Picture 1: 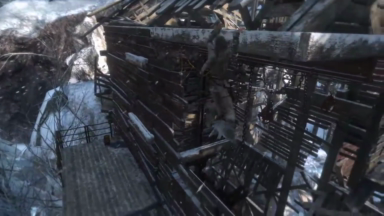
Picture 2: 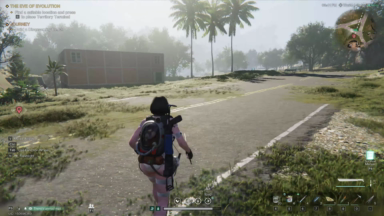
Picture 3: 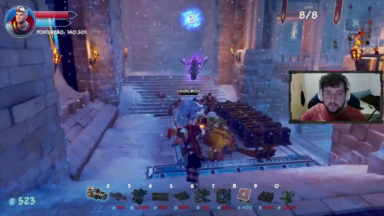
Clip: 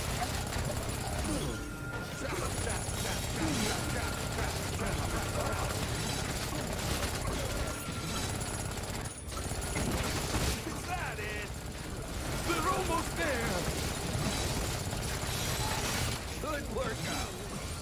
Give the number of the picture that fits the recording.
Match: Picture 3